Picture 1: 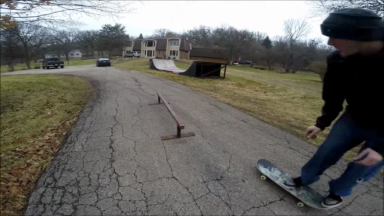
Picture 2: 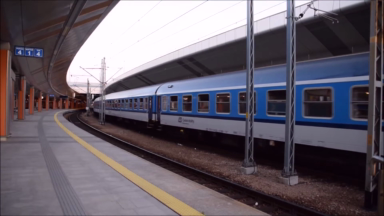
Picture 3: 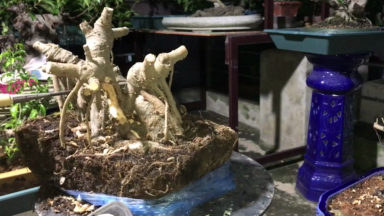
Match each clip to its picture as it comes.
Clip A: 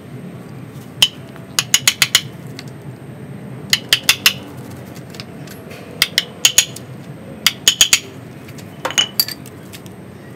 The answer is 3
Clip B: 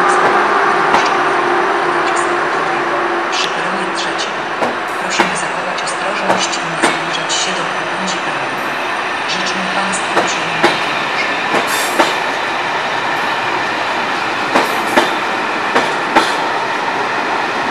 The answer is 2